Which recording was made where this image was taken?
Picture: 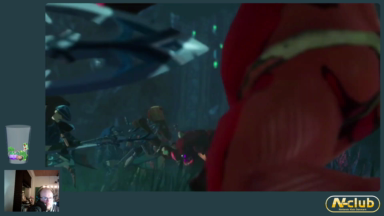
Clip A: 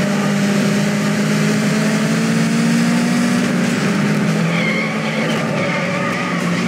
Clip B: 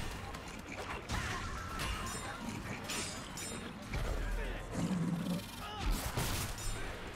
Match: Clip B